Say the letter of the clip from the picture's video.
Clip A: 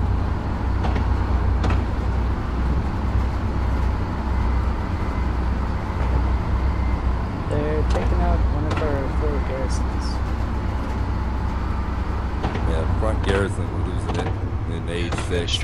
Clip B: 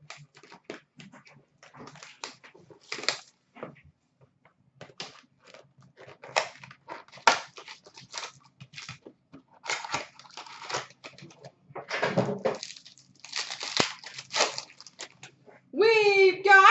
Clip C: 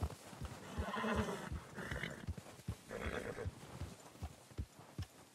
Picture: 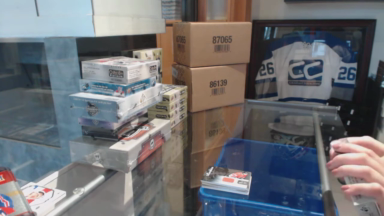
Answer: B